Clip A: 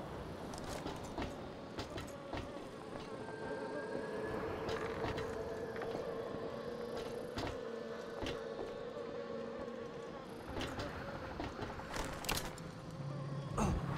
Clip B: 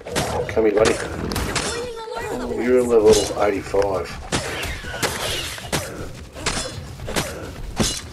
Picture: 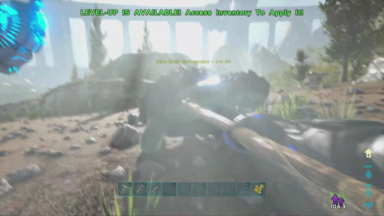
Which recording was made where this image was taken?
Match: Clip B